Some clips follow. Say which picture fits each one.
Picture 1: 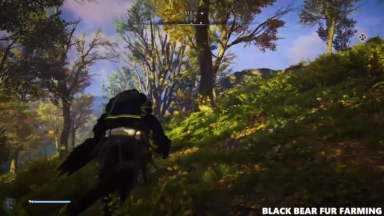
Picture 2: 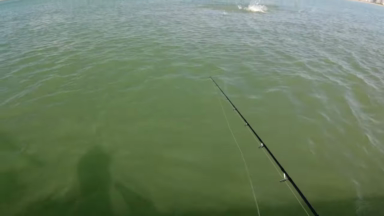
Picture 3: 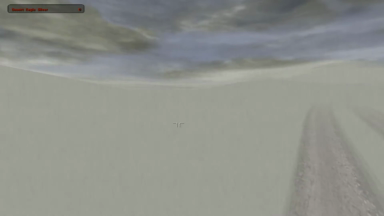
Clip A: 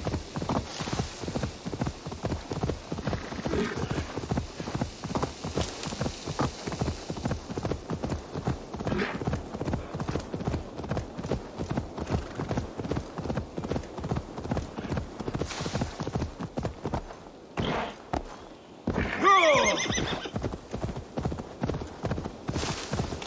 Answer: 1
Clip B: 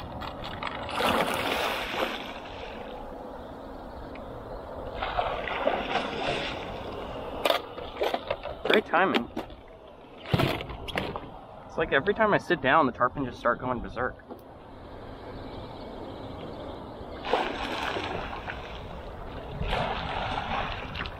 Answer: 2